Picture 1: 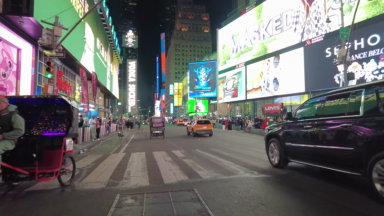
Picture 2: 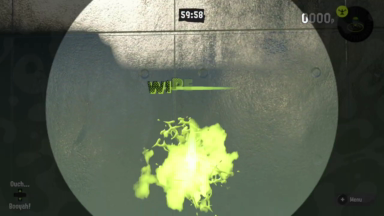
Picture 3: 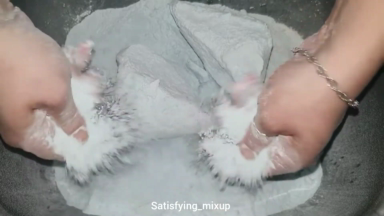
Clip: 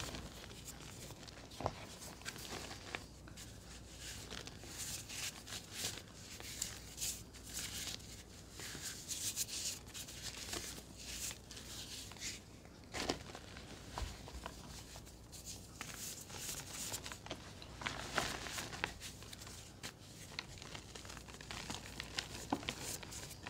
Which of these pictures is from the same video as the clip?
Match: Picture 3